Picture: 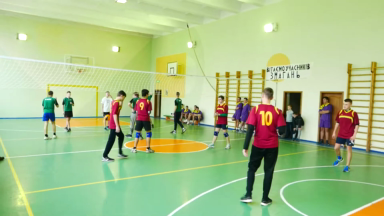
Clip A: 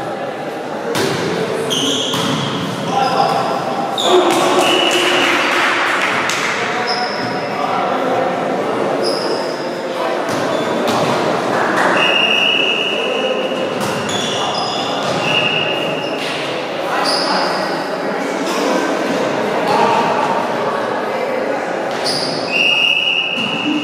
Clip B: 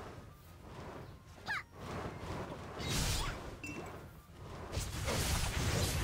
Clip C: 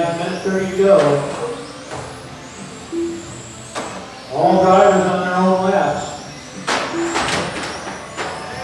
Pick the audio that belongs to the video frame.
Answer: A